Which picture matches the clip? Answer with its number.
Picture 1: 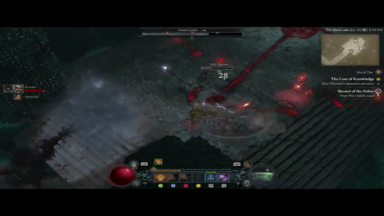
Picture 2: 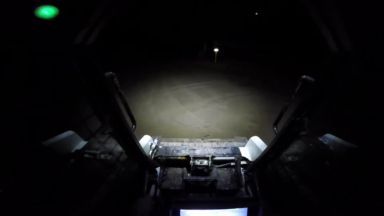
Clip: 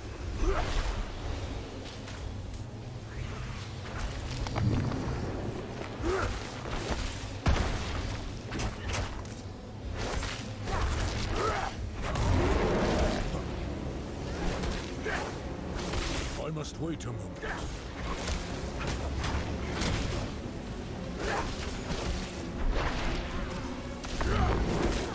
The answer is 1